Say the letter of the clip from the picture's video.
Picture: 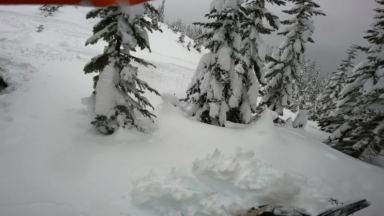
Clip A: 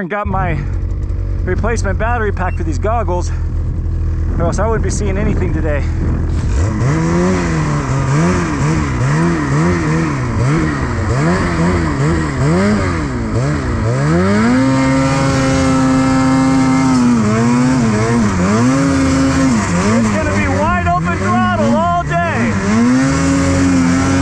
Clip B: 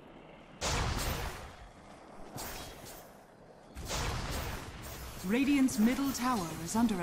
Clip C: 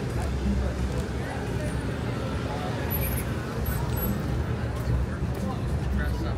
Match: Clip A